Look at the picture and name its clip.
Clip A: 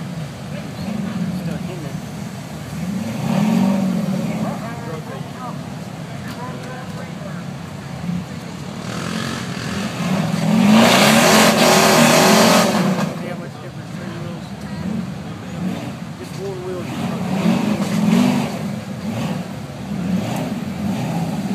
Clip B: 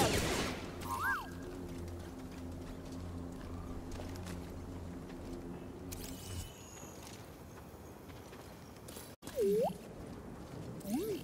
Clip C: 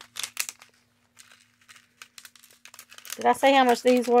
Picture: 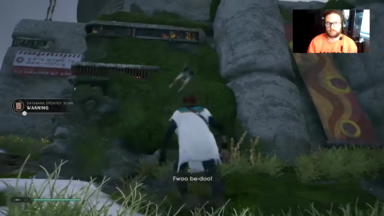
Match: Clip B